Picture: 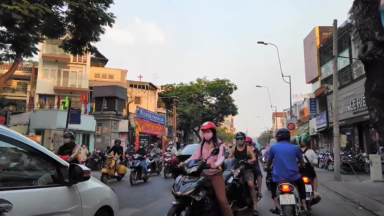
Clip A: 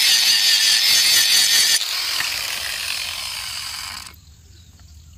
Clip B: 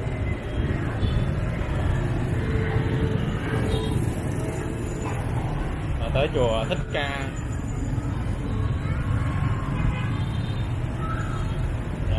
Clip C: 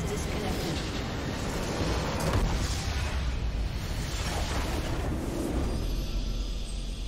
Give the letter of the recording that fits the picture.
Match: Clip B